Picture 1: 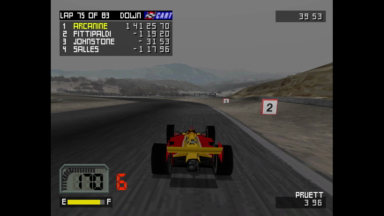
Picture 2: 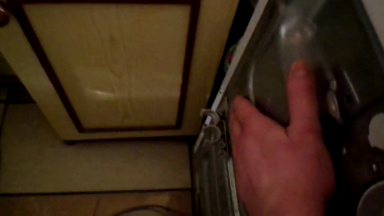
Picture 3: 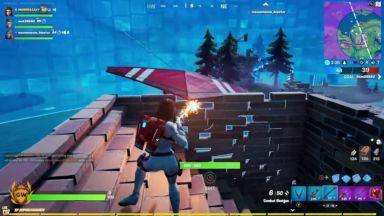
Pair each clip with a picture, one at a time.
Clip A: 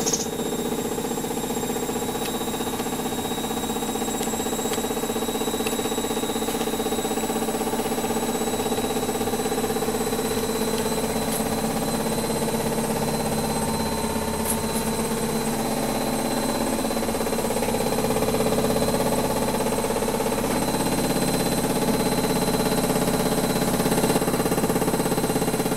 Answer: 2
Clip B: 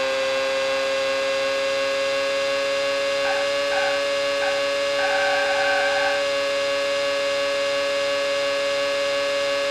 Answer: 1